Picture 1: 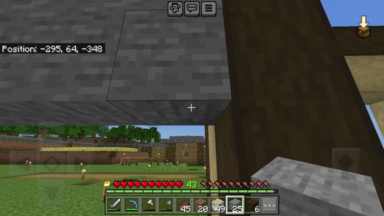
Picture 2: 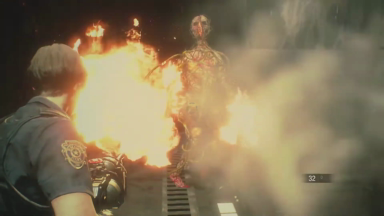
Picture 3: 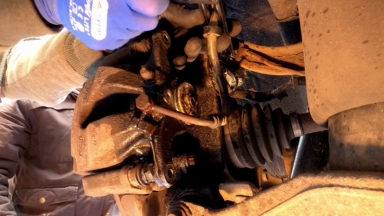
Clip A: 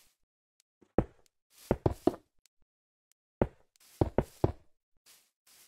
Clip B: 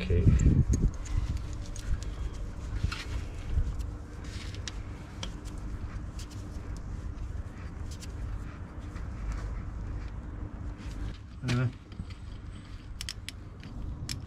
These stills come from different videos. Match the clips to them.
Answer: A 1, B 3